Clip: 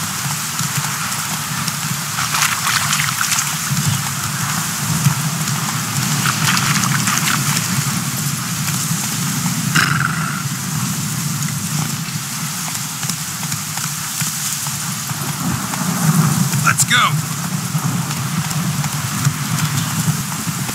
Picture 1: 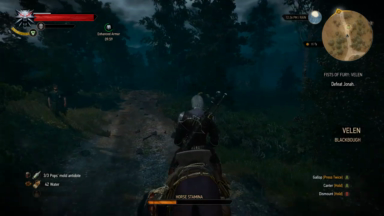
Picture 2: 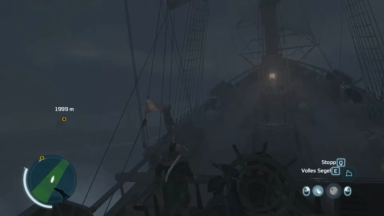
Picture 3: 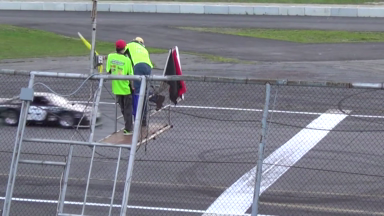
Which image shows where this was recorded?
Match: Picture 1